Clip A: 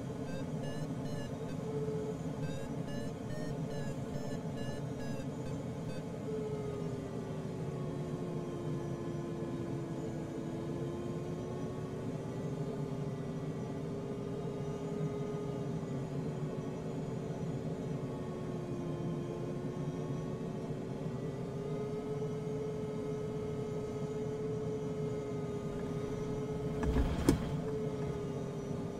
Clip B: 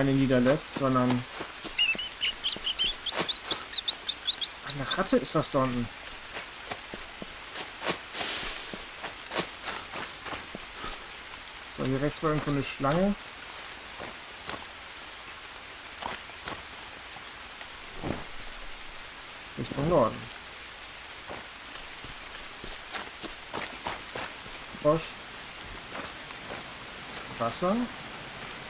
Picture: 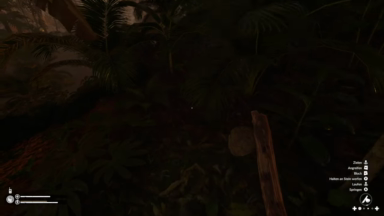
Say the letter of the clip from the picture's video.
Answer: B